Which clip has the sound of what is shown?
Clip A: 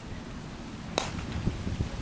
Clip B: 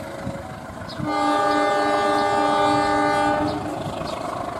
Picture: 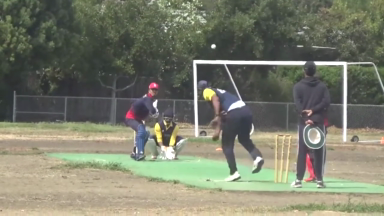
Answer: A